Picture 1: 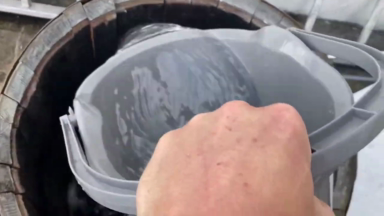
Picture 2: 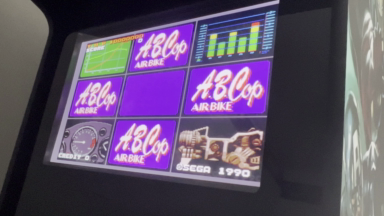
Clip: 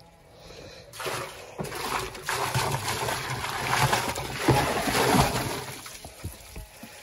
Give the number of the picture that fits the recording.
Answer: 1